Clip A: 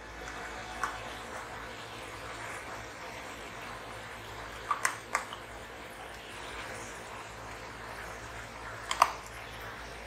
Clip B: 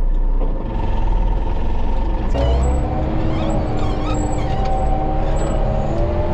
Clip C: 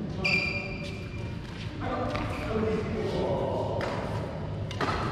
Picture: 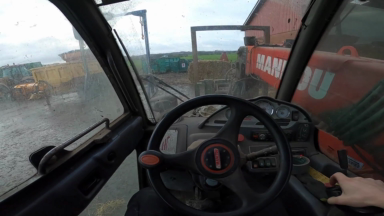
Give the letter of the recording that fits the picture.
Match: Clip B